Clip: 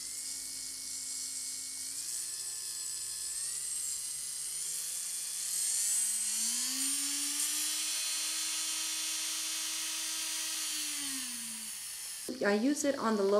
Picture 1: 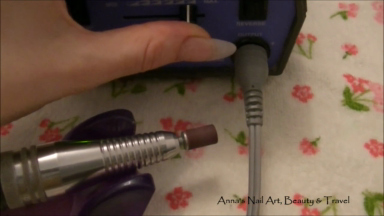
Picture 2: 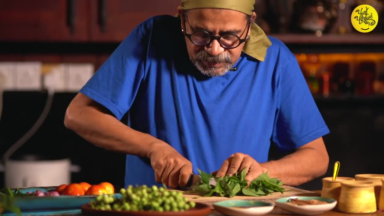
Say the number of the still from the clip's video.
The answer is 1